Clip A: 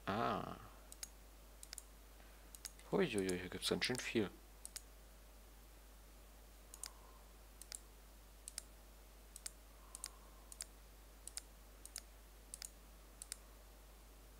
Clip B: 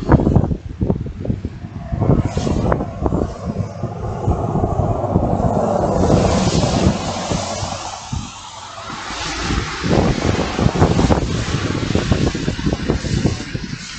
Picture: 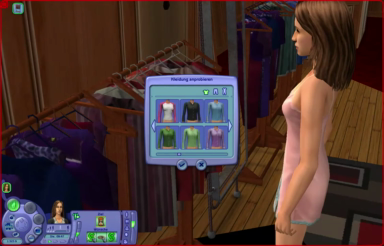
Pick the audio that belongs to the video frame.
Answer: A